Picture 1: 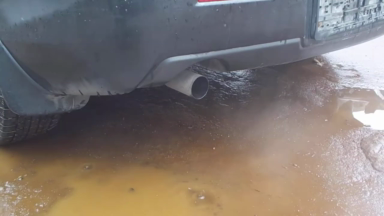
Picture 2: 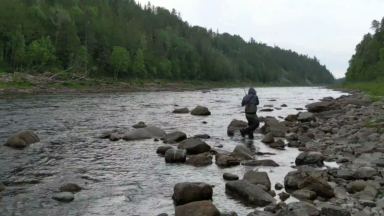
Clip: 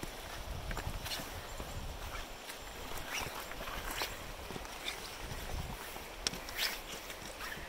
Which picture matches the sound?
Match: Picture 2